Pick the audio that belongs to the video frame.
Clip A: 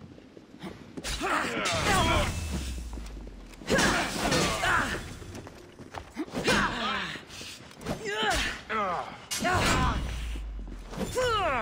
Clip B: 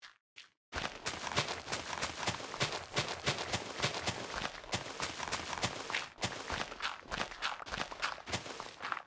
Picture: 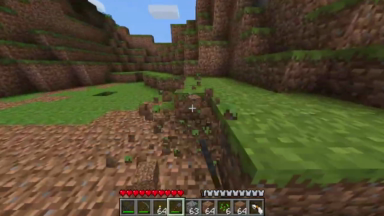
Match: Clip B